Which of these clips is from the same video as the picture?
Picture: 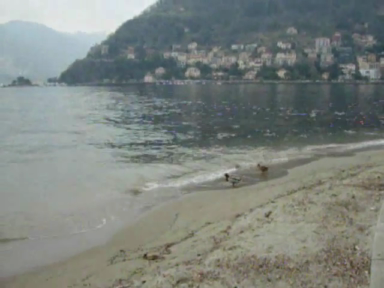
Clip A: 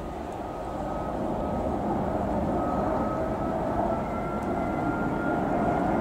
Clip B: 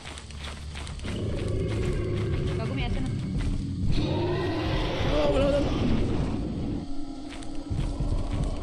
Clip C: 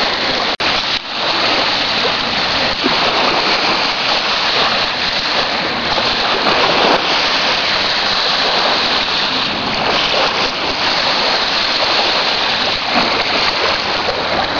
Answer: C